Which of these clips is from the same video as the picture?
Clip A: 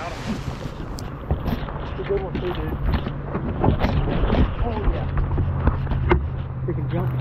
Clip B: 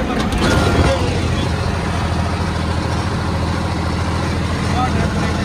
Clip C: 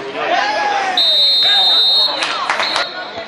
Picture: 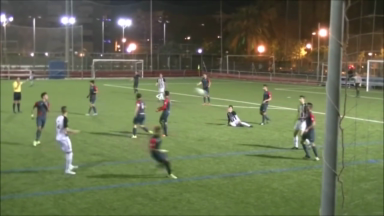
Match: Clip C